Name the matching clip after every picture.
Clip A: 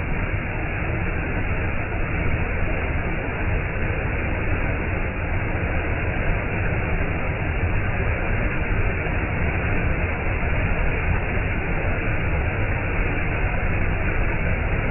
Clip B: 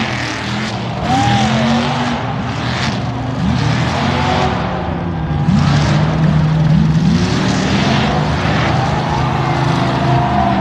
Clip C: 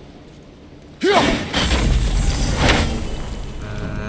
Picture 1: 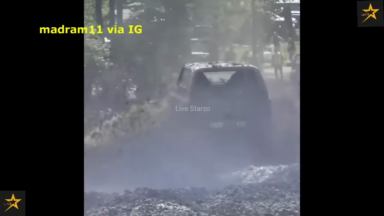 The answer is B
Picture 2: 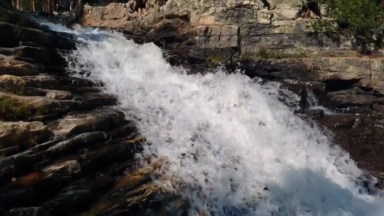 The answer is A